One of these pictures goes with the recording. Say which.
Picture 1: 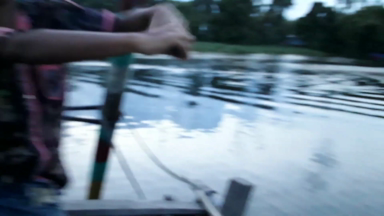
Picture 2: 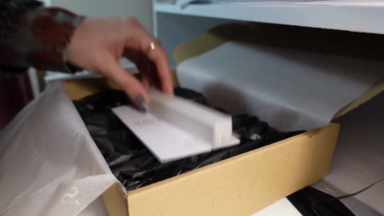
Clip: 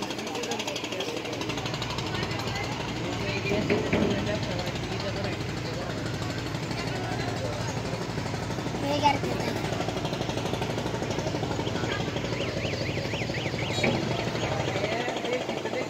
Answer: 1